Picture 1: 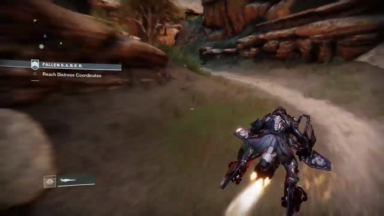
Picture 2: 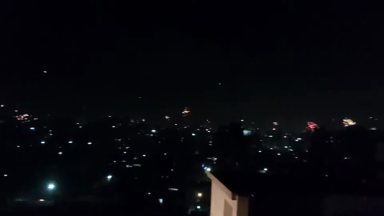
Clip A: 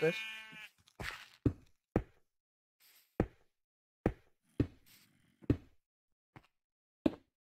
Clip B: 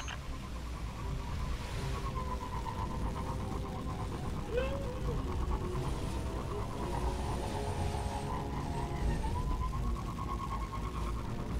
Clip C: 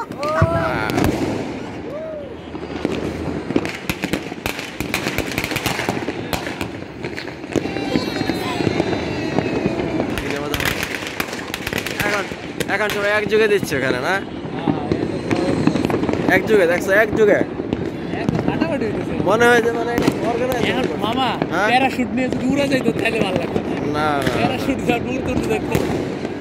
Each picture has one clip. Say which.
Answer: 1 B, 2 C